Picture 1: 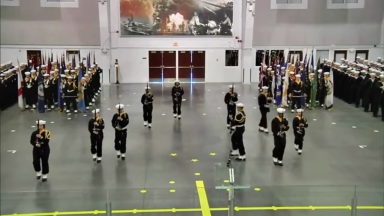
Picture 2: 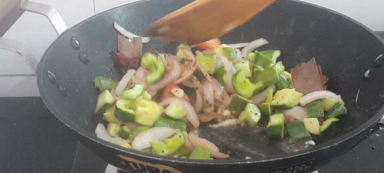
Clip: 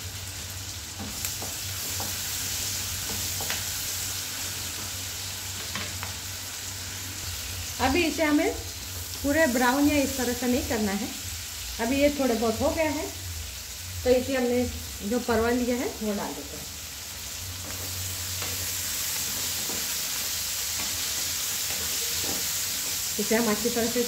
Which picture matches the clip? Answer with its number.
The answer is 2